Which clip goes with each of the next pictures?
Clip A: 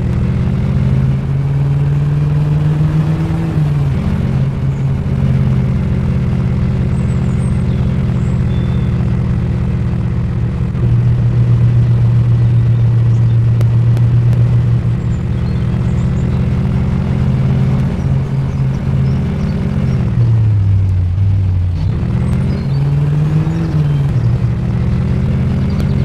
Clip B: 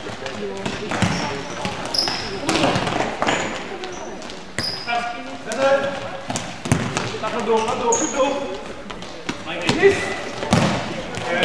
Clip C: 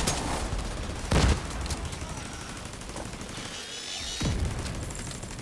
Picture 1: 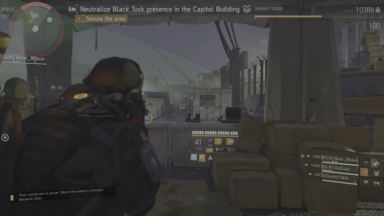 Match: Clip C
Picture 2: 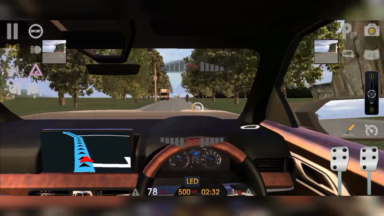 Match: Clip A